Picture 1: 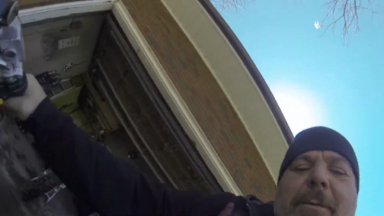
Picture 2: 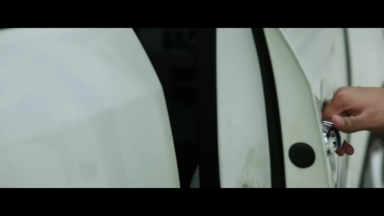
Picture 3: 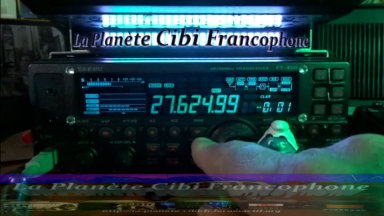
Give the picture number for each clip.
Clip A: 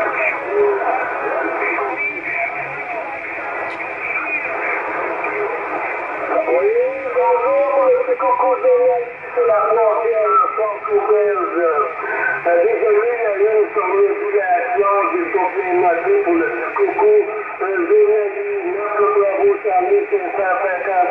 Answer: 3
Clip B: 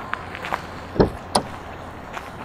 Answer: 2